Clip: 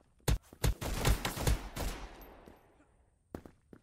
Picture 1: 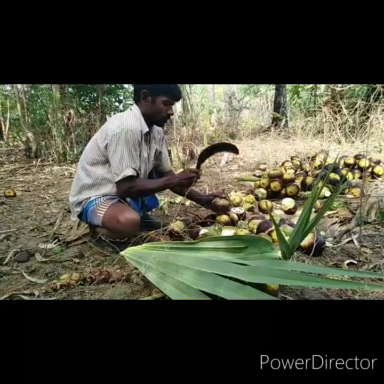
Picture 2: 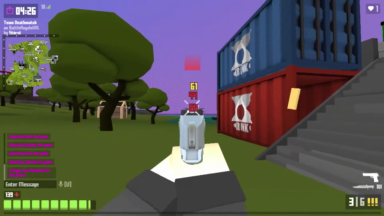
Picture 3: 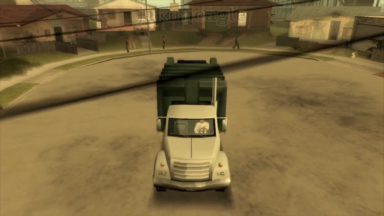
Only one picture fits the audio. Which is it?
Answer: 2